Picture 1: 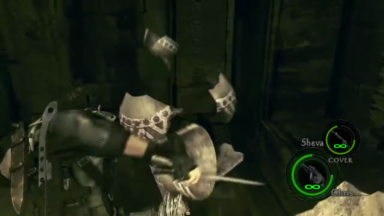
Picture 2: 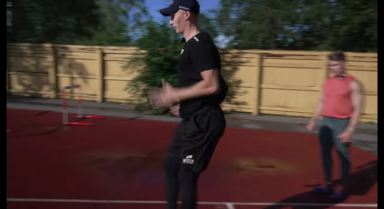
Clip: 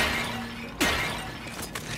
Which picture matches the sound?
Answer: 1